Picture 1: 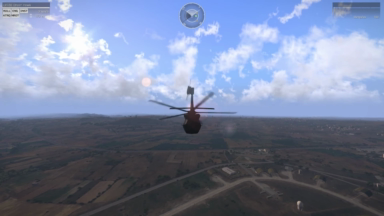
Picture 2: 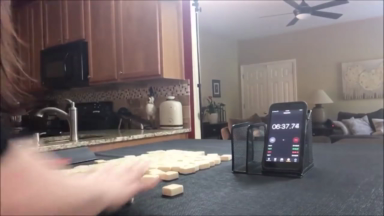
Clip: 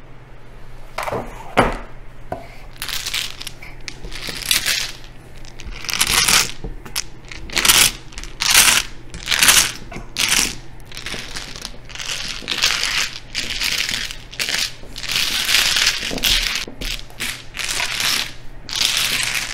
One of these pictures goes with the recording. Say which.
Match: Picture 2